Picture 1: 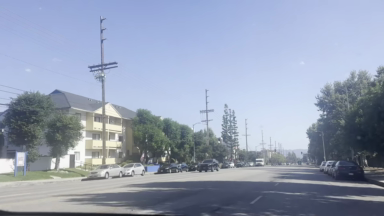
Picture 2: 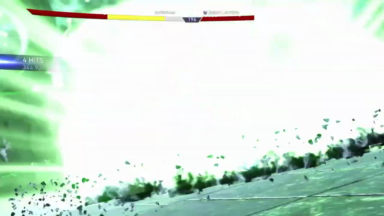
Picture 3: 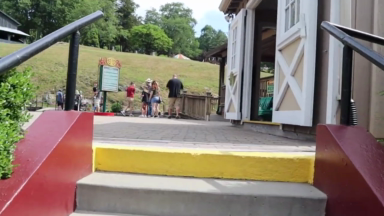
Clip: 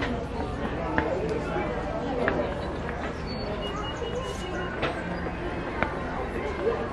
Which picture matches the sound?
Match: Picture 3